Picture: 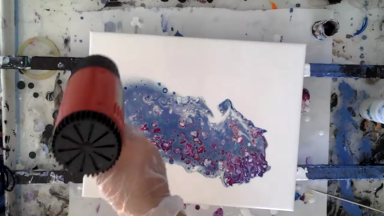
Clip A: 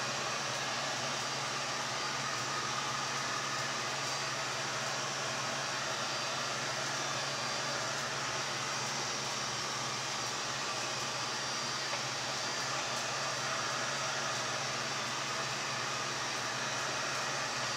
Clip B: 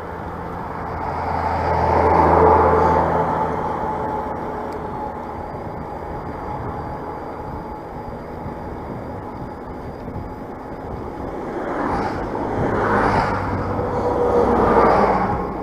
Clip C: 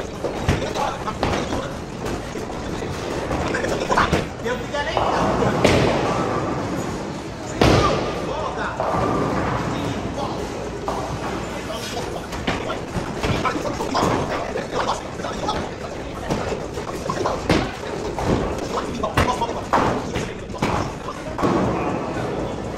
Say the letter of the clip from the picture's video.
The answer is A